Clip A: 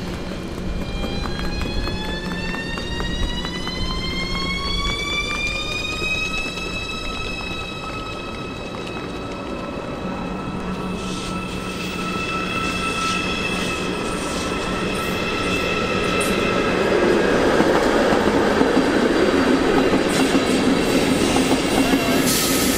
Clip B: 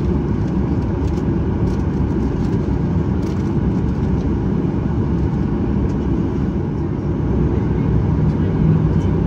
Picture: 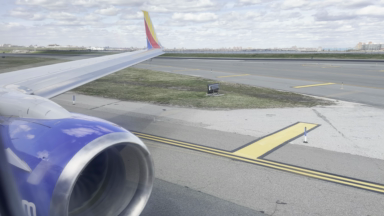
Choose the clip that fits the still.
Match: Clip B